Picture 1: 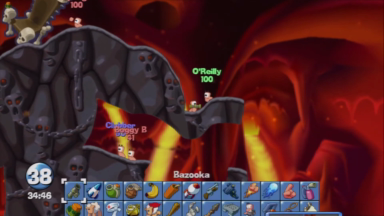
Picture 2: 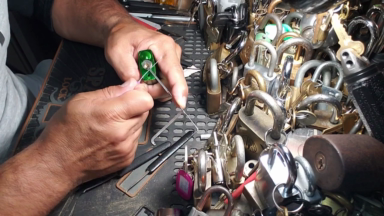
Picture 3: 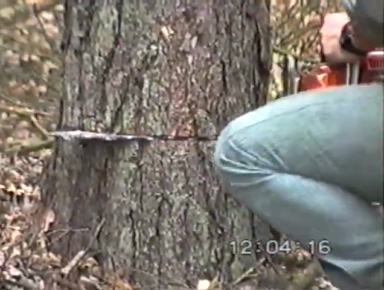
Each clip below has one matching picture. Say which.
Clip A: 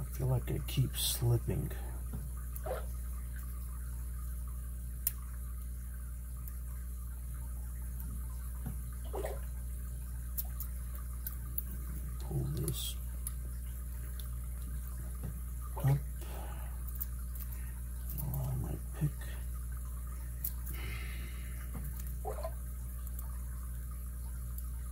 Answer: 2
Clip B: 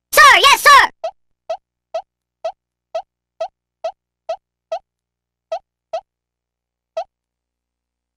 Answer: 1